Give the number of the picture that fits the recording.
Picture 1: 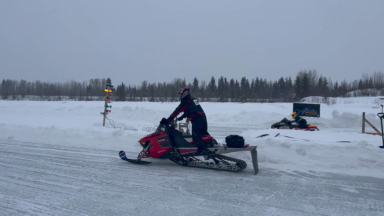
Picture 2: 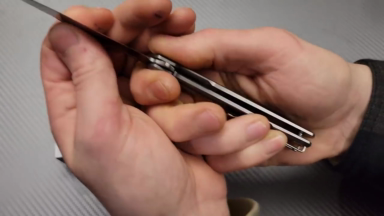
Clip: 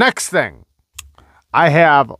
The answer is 2